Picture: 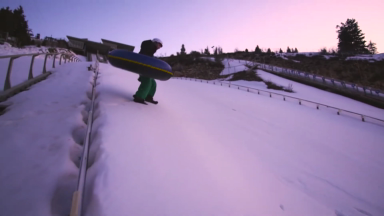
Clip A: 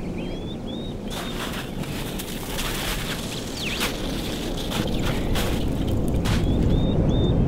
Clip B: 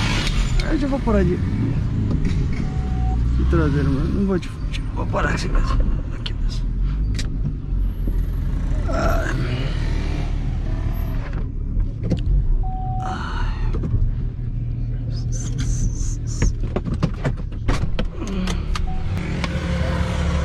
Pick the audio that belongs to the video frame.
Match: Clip A